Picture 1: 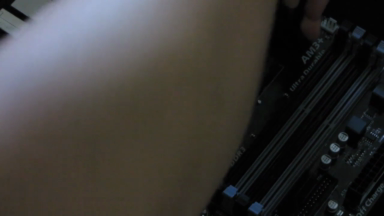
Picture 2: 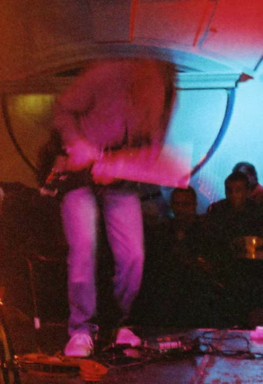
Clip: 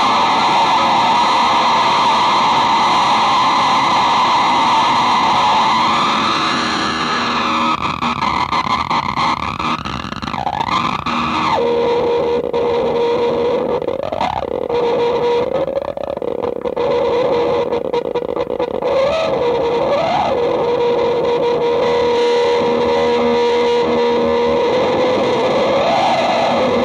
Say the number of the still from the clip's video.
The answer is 2